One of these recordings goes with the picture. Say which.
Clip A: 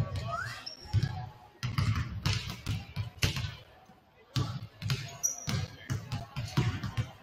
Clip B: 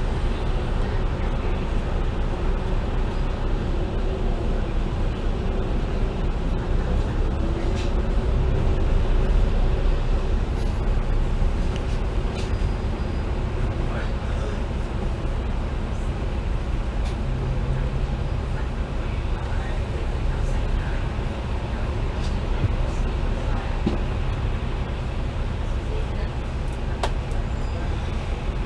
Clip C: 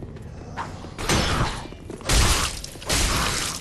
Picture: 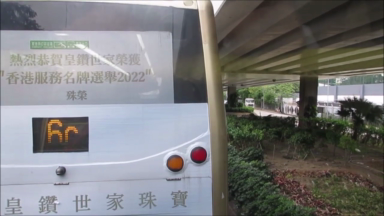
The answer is B